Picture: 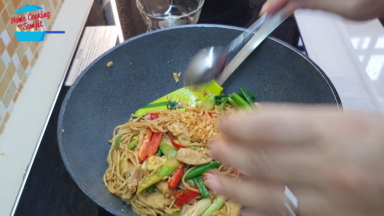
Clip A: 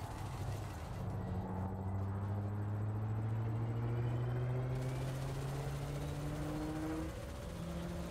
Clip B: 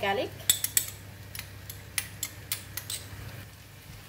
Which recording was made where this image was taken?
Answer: B